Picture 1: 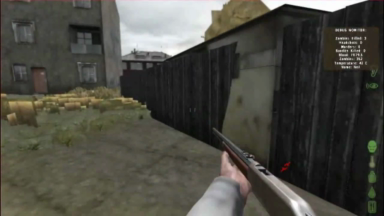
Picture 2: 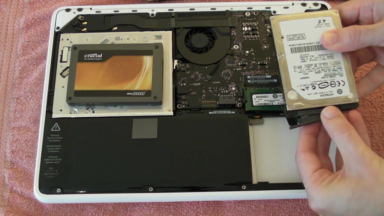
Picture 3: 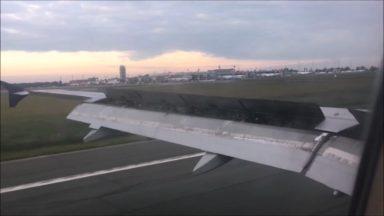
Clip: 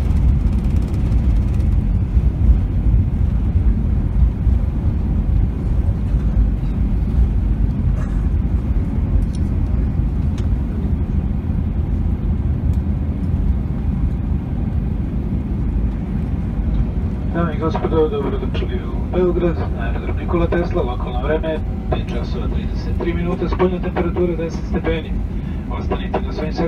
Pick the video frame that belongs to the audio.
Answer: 3